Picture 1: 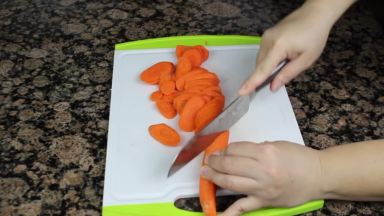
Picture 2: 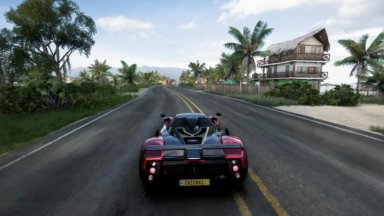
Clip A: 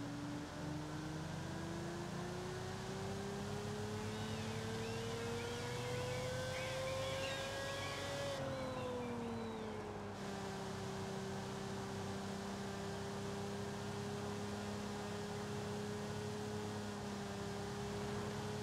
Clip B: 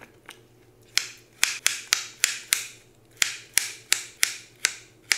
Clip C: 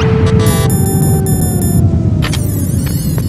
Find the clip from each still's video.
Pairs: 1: B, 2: A